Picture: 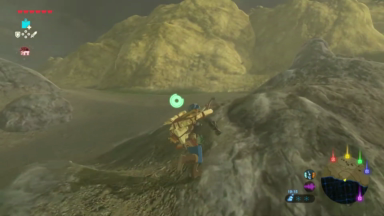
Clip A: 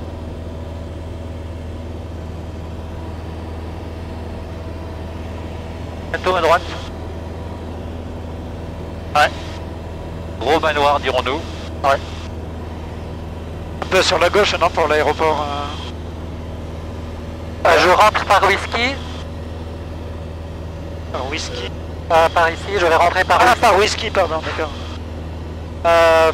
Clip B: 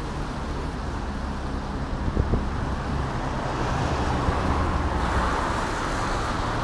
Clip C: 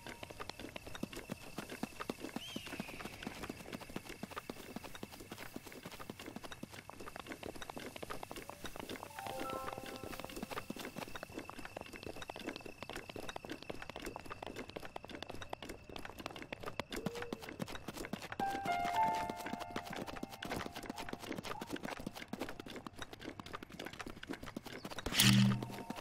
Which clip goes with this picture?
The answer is C